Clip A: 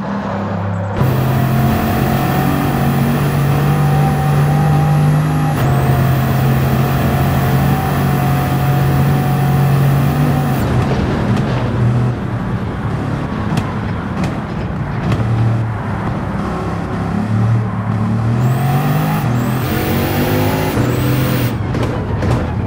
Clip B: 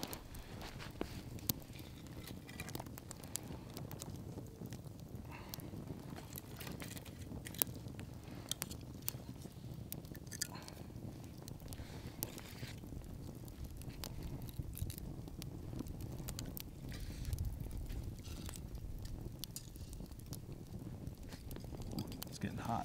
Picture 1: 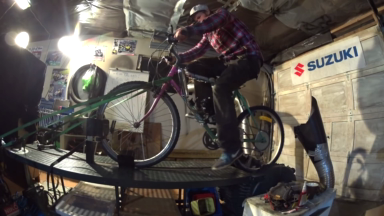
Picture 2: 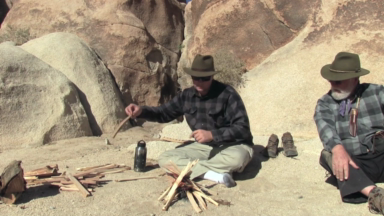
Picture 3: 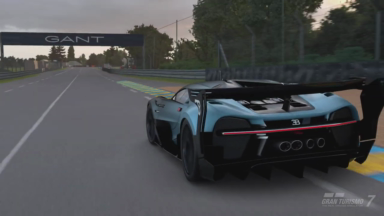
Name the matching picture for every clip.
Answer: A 3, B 2